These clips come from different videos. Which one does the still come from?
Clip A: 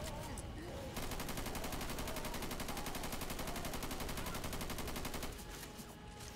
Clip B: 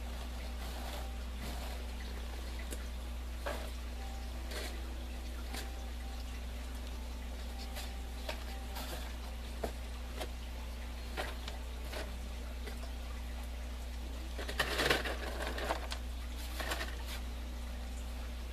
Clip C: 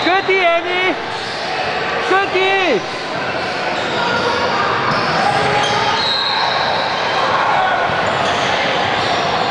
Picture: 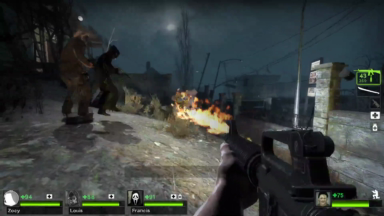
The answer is A